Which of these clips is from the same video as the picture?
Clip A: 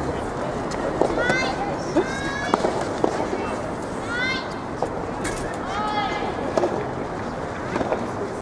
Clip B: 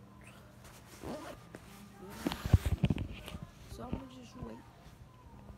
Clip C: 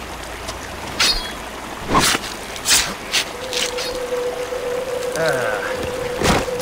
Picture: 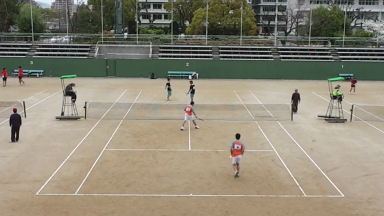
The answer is A